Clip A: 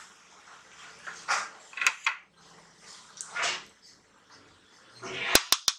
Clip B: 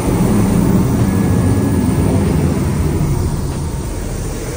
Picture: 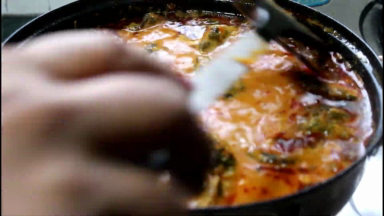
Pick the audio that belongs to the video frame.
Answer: A